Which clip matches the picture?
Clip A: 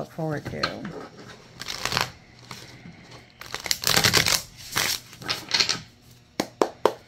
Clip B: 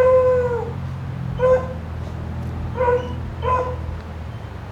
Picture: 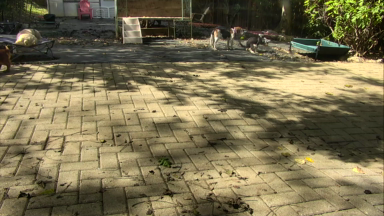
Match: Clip B